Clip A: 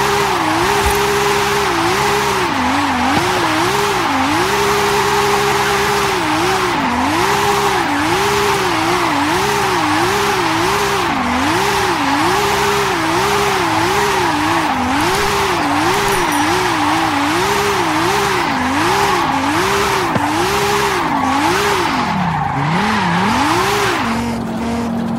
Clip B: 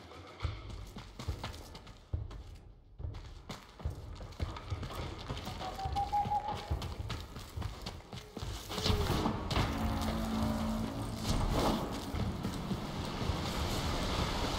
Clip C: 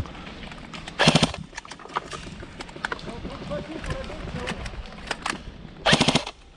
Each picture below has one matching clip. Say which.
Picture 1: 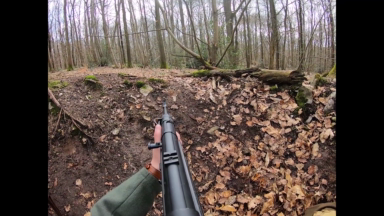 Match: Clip C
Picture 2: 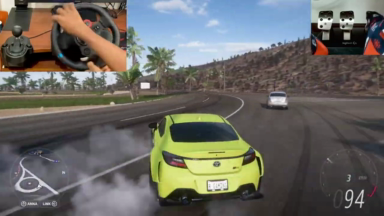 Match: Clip A